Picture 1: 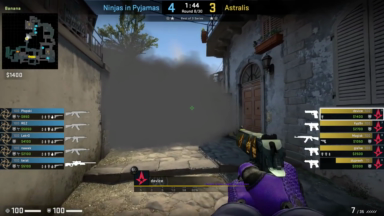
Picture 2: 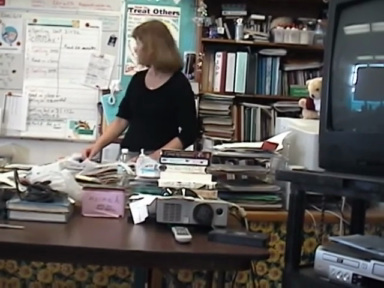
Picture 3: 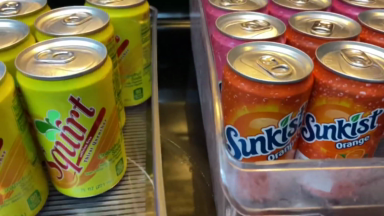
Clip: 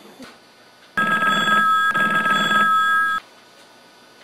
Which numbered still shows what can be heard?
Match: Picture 2